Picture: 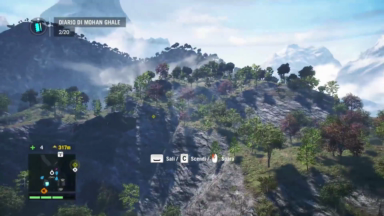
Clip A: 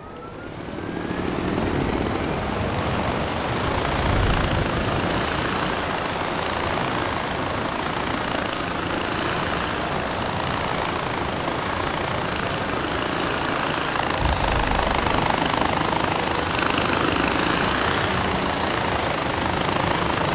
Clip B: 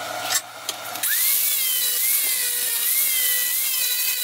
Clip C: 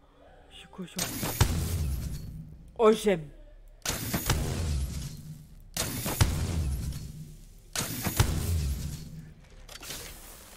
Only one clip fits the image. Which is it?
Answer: A